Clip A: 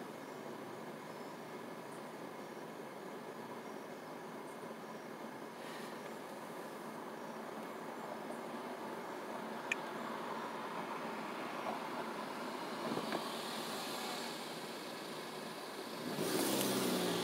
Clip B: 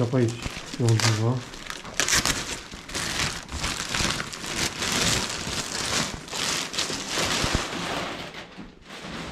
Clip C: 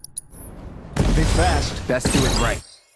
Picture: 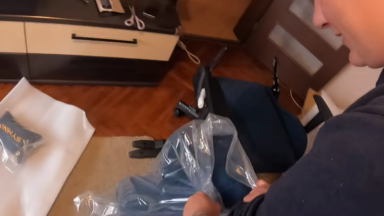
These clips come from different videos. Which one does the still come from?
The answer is B